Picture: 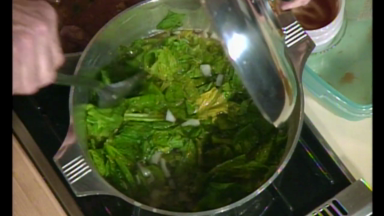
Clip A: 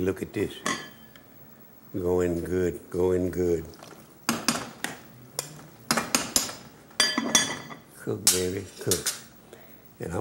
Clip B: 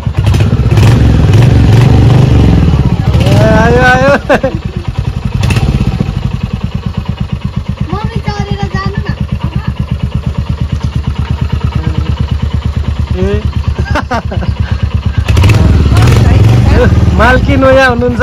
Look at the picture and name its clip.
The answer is A